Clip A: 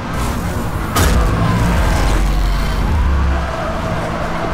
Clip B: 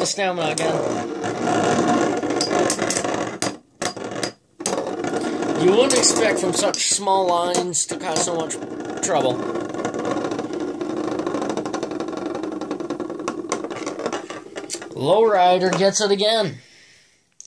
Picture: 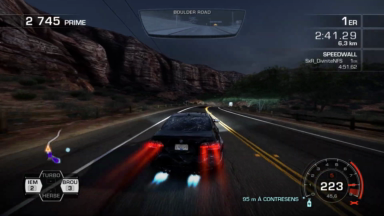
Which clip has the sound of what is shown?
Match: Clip A